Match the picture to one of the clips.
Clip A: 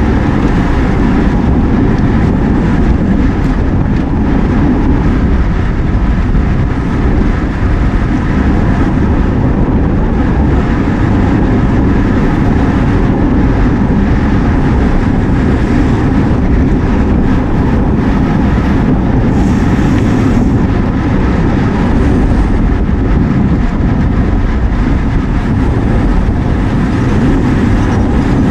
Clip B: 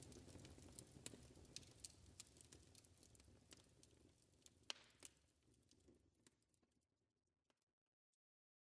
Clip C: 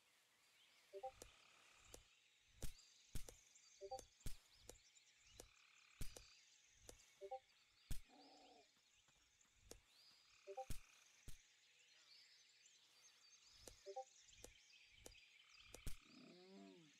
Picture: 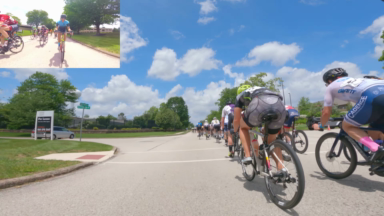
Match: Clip A